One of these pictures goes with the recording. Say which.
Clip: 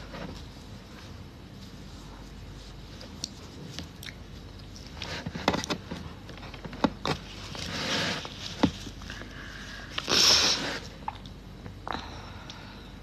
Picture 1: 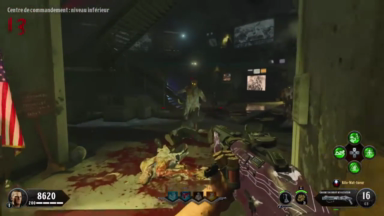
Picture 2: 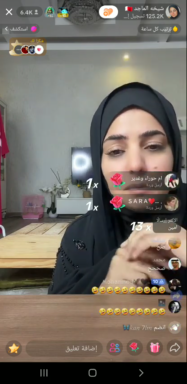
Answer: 2